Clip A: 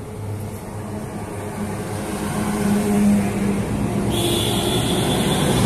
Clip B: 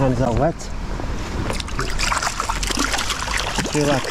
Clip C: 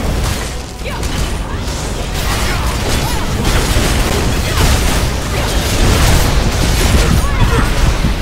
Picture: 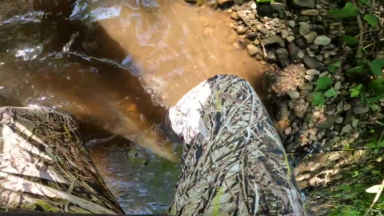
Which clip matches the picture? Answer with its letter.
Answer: B